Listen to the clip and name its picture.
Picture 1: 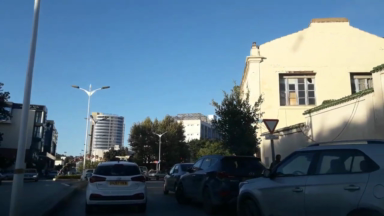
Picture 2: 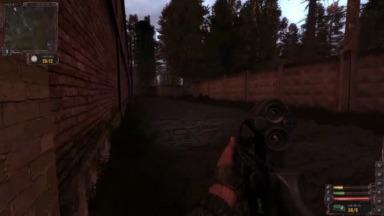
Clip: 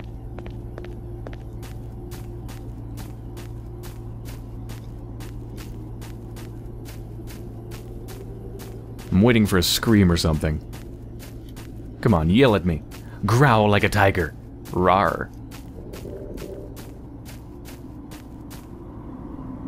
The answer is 2